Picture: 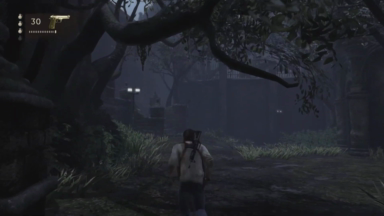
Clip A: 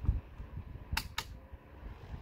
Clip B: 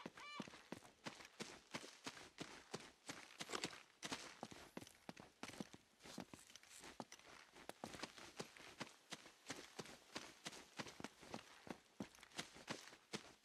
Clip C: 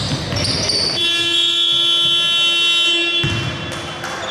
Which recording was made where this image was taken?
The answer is B